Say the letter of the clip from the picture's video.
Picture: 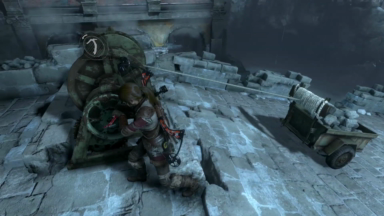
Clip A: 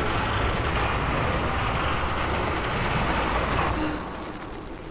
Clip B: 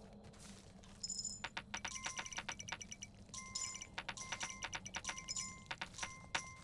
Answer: A